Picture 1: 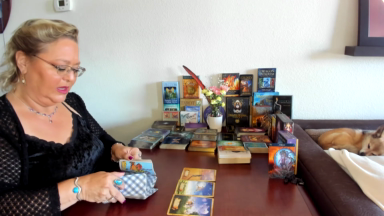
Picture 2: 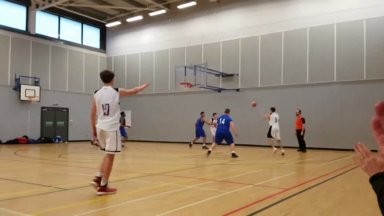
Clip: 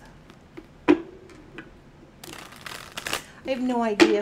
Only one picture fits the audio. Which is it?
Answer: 1